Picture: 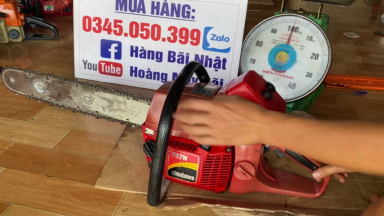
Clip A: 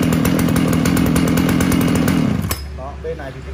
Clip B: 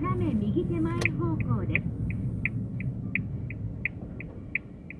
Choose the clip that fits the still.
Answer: A